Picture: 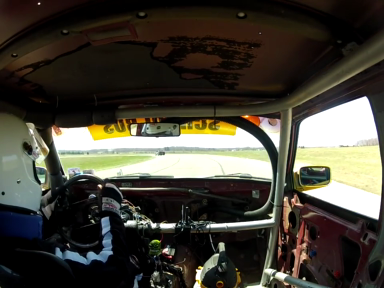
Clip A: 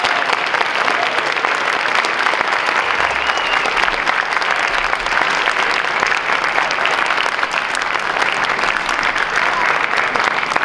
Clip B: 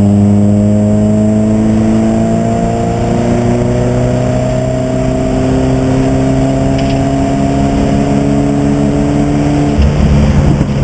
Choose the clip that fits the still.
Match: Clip B